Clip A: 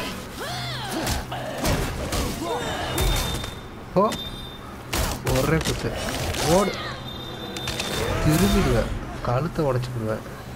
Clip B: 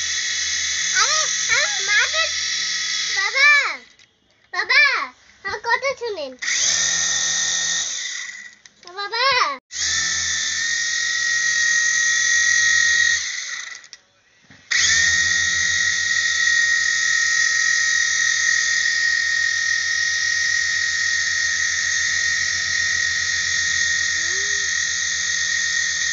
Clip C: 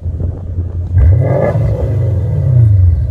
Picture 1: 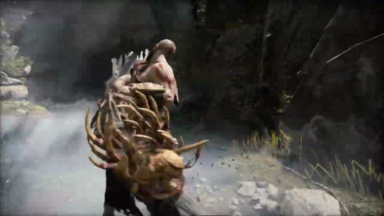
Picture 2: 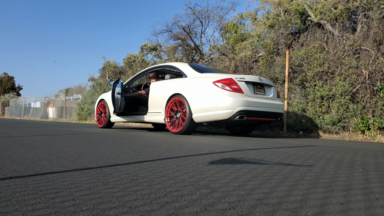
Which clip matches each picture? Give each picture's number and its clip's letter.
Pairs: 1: A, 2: C